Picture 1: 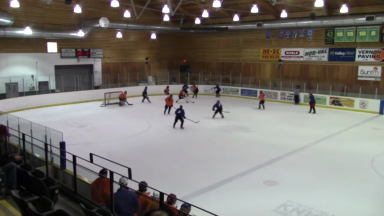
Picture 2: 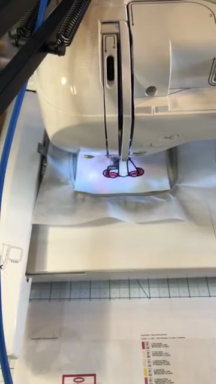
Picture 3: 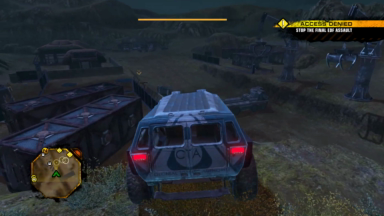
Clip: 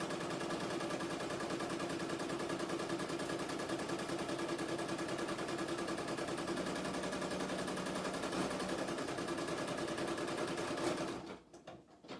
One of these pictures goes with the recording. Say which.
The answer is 2